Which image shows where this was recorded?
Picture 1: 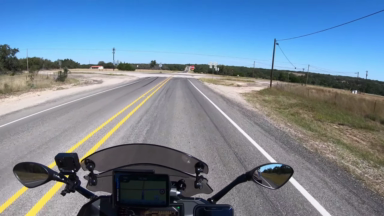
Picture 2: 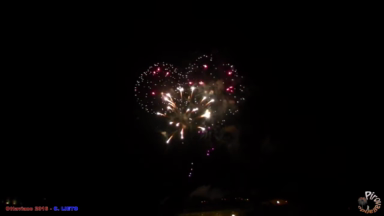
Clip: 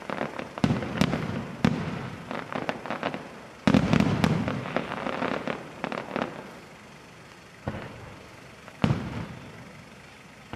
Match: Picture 2